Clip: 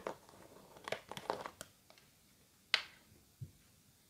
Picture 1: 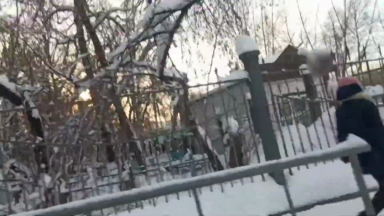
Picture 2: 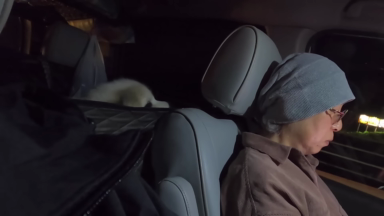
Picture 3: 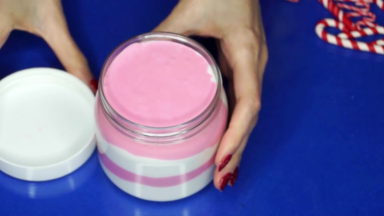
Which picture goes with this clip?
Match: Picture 3